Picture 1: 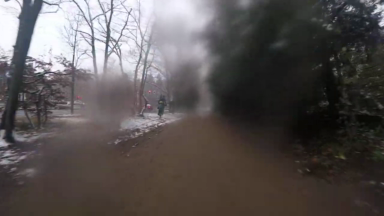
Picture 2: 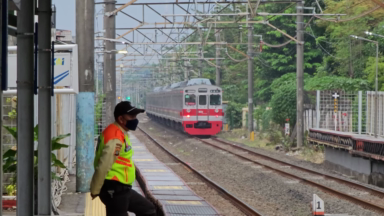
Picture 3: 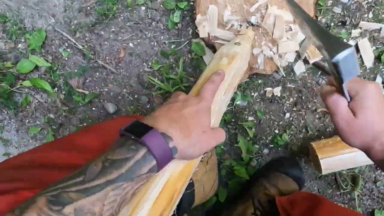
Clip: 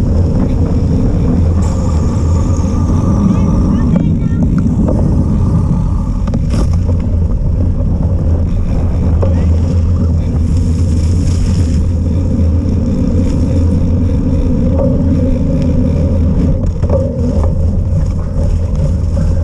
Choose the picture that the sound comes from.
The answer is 1